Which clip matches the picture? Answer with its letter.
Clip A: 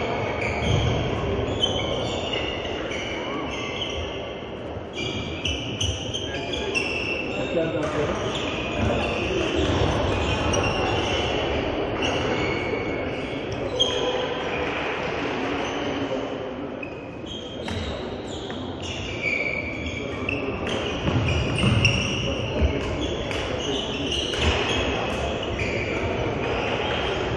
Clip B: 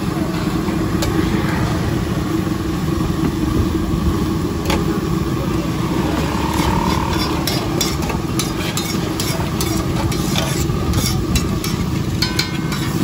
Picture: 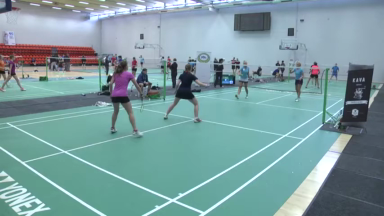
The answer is A